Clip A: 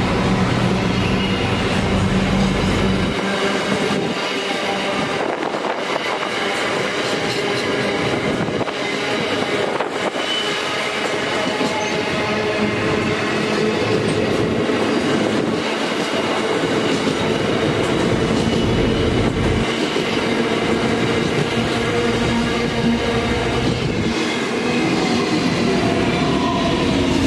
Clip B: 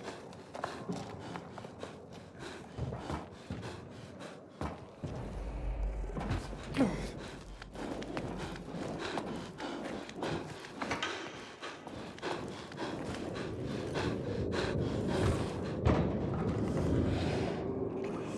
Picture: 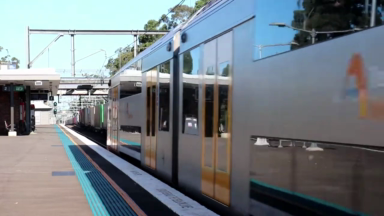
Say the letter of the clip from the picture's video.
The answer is A